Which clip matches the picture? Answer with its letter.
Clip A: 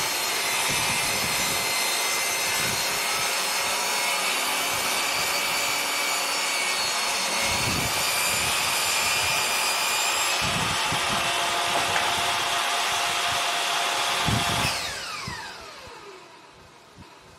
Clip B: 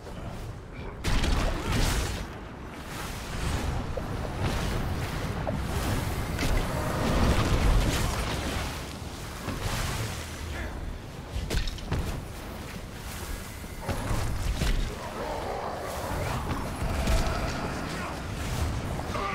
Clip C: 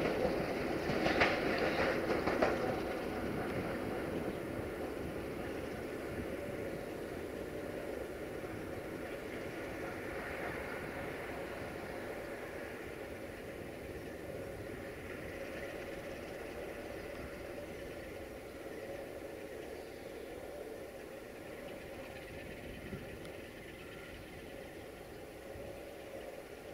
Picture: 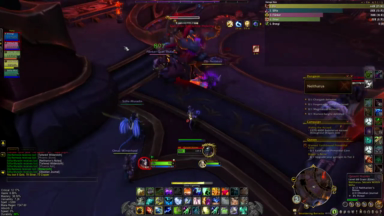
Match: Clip B